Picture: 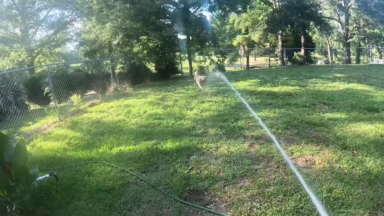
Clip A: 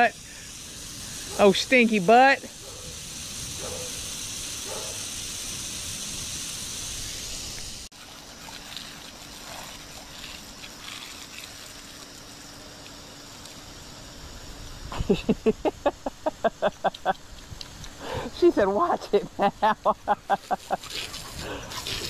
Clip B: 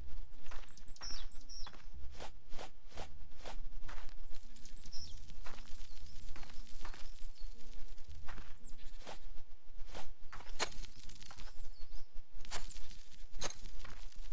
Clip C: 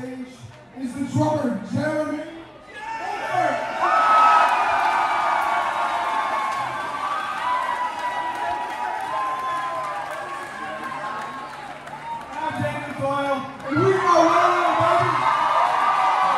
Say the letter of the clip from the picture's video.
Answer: A